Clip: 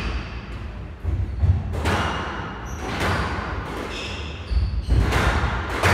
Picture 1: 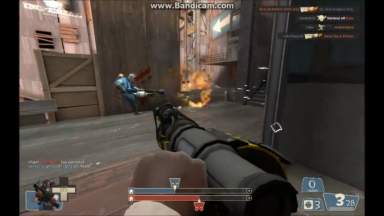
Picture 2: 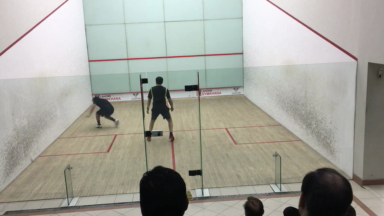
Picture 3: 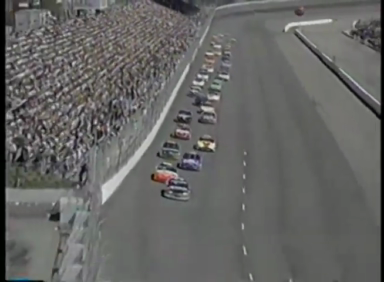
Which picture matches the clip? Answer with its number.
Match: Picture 2